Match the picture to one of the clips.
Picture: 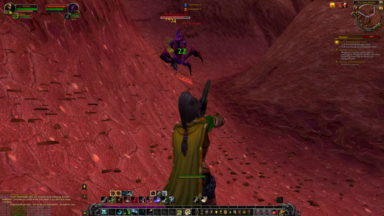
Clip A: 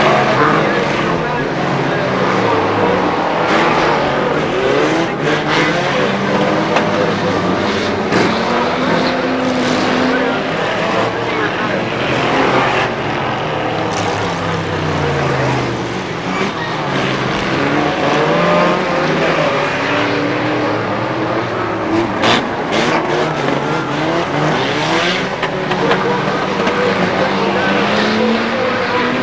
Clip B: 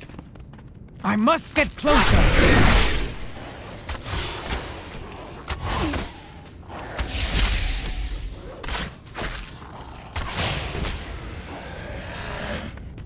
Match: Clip B